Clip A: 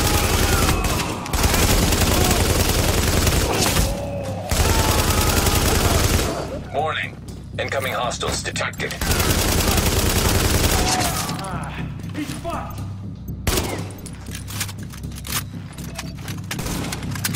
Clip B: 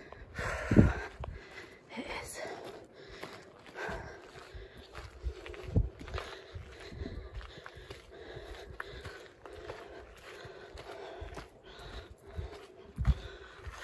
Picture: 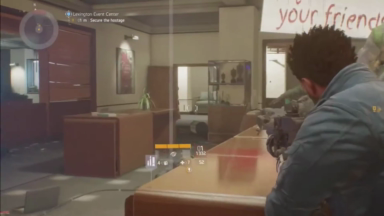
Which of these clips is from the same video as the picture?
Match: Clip A